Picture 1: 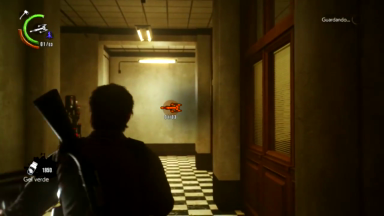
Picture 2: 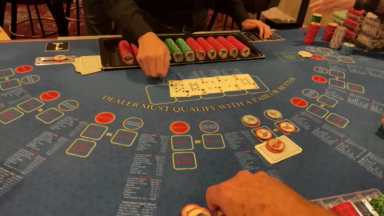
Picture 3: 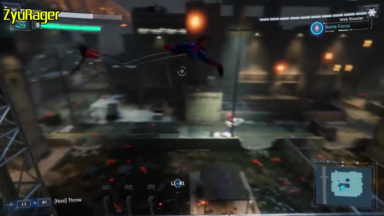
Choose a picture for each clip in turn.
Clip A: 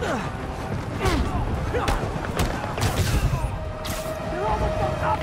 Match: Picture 3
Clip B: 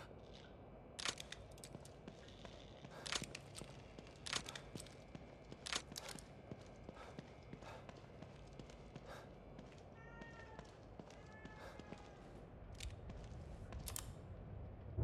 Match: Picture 1